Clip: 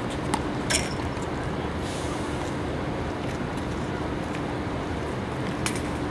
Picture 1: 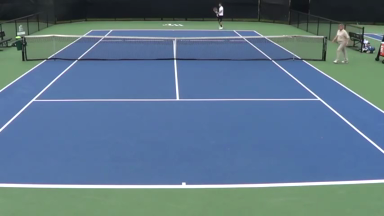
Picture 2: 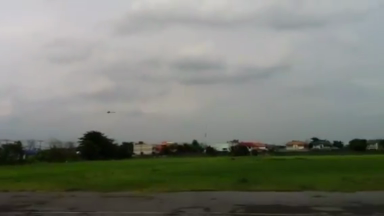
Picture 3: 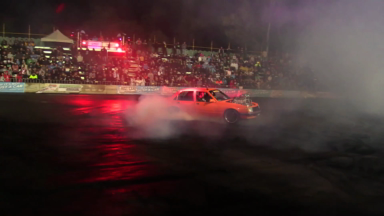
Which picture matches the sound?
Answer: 1